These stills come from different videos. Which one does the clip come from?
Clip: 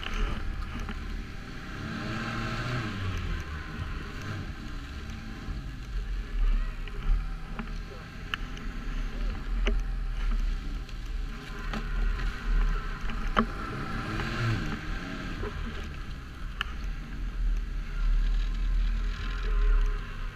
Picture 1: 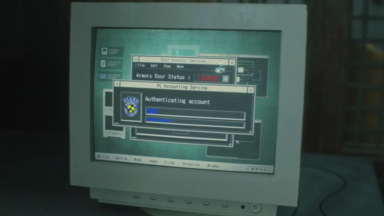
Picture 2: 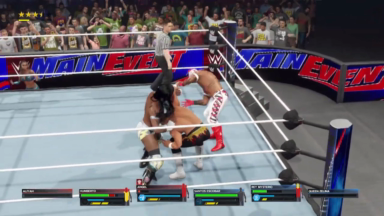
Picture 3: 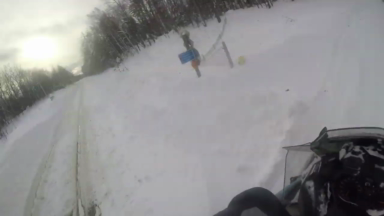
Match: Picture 3